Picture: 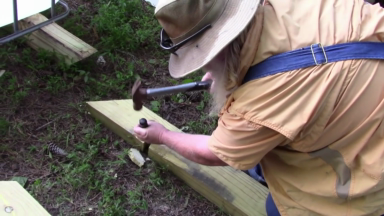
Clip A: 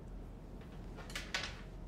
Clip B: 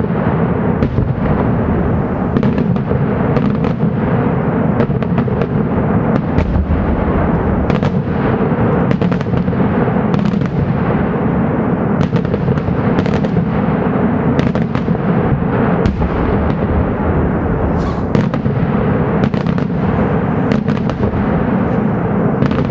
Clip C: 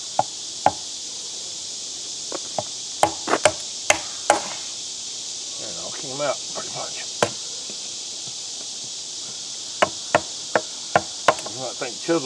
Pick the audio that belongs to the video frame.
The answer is C